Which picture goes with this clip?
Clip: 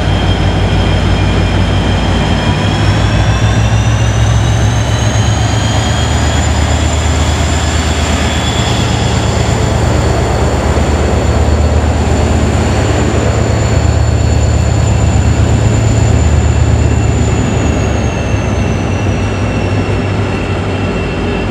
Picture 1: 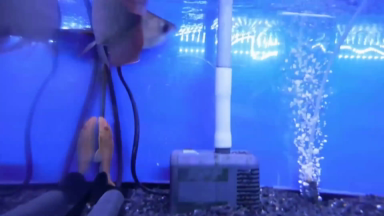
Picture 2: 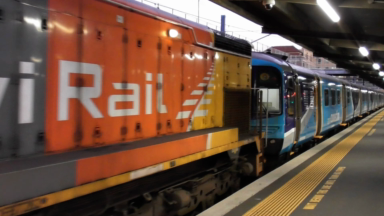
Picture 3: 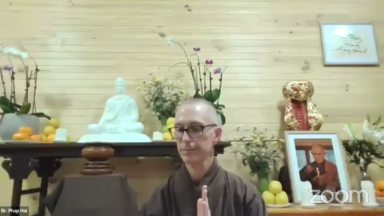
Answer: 2